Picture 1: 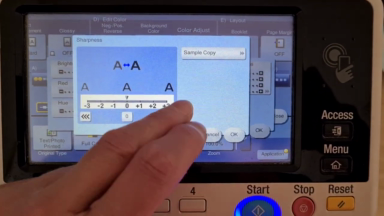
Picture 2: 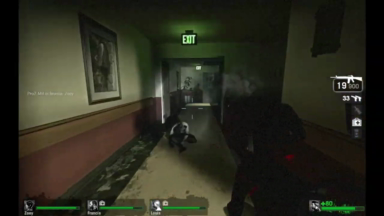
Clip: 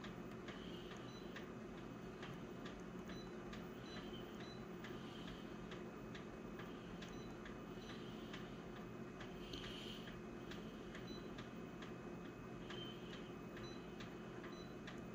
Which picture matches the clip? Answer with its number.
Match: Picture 1